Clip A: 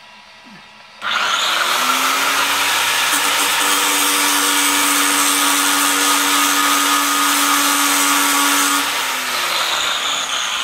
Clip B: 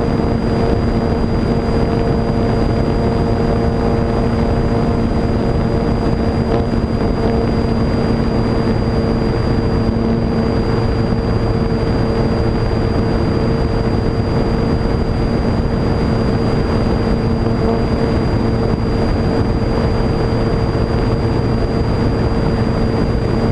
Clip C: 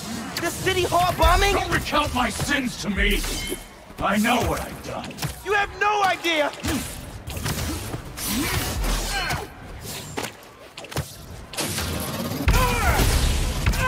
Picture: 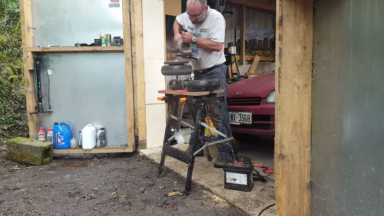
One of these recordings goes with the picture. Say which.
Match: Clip A